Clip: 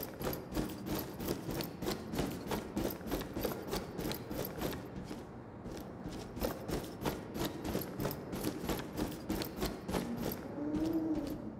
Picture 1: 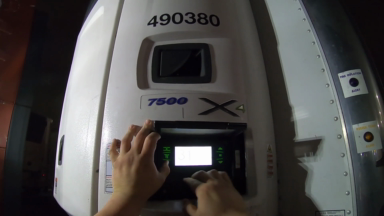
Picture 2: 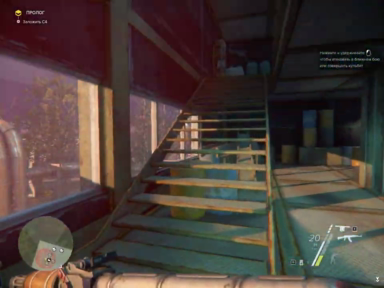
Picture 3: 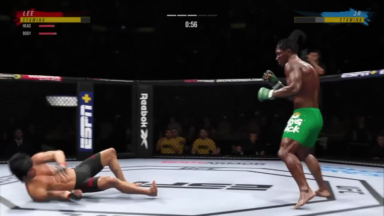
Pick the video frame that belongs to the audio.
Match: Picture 2